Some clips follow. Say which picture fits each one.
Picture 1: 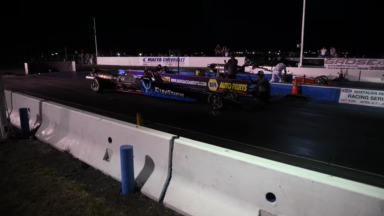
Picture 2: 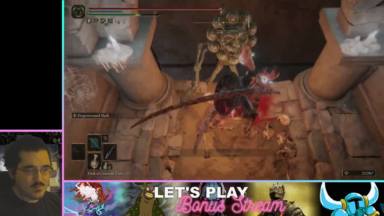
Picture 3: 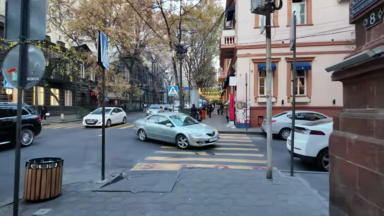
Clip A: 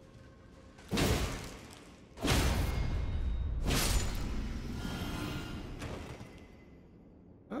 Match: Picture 2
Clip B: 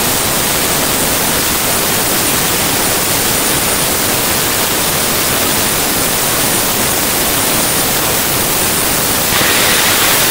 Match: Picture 1